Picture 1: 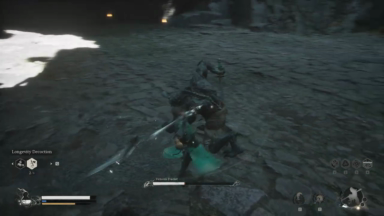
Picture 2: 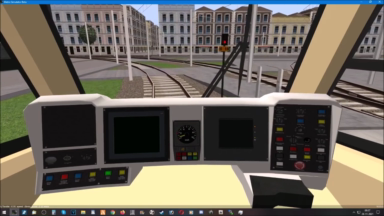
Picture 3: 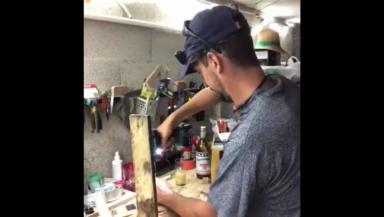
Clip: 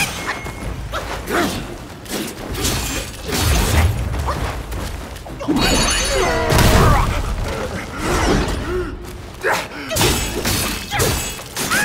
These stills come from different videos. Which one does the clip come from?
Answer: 1